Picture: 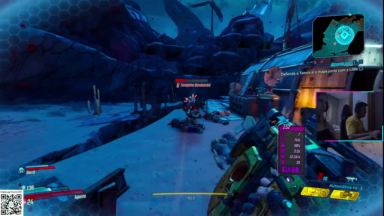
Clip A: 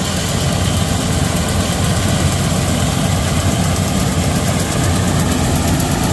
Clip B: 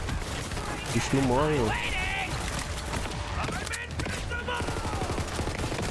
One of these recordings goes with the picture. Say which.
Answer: B